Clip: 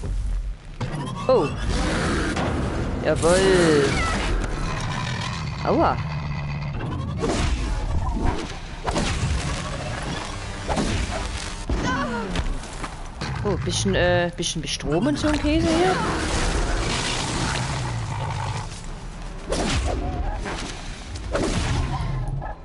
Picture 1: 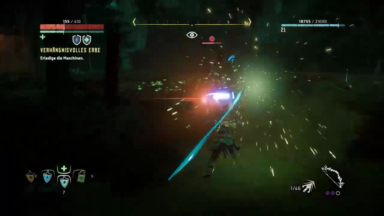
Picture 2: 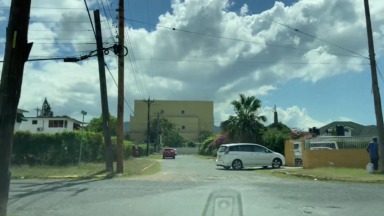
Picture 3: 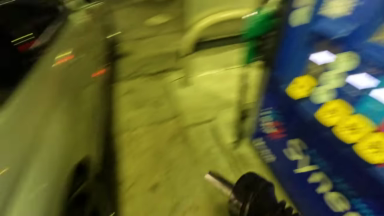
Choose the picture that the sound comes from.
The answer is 1